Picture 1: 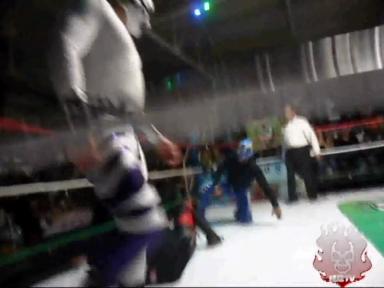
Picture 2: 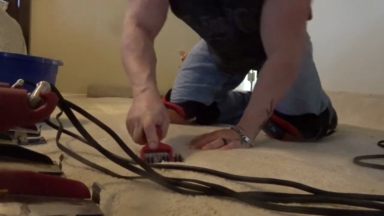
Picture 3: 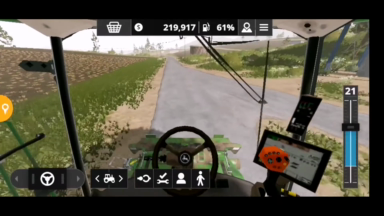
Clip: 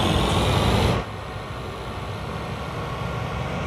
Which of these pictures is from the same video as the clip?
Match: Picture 3